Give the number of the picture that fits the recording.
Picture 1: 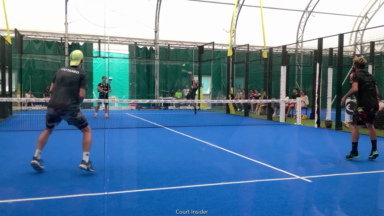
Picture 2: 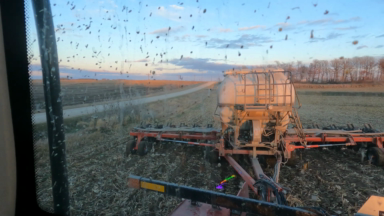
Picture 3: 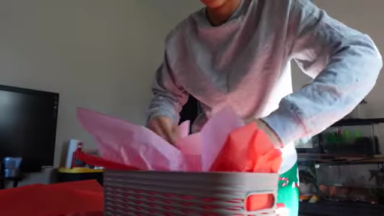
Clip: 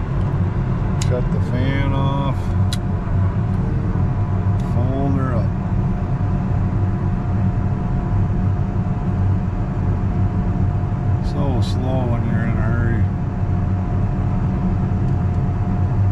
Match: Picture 2